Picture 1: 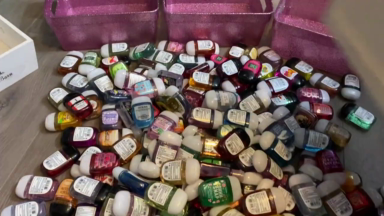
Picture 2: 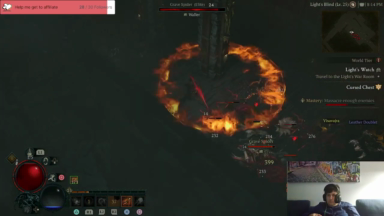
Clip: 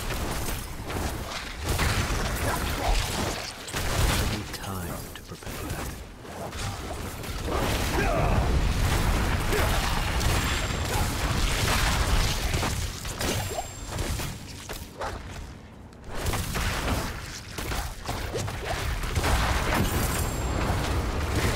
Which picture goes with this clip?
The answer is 2